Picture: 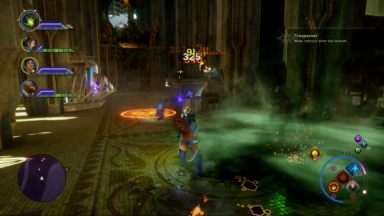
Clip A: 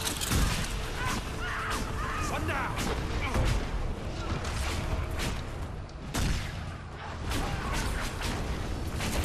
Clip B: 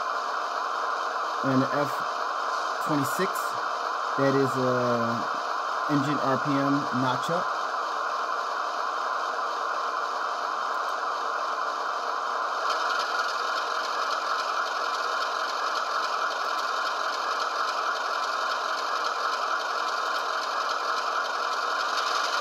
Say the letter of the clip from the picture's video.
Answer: A